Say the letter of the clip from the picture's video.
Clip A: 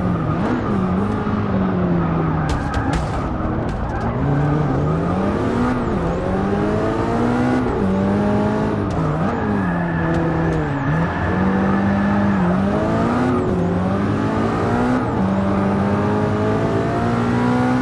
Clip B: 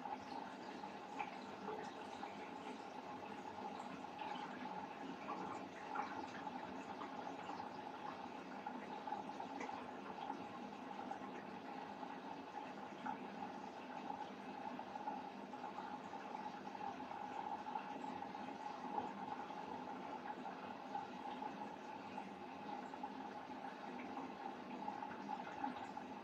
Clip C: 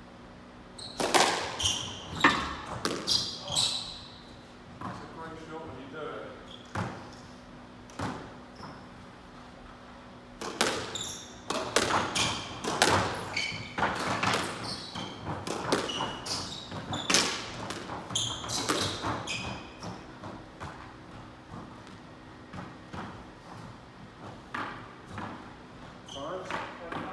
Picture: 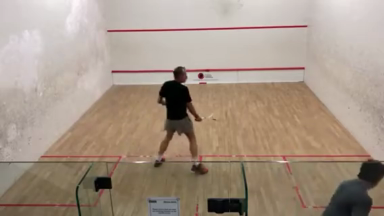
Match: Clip C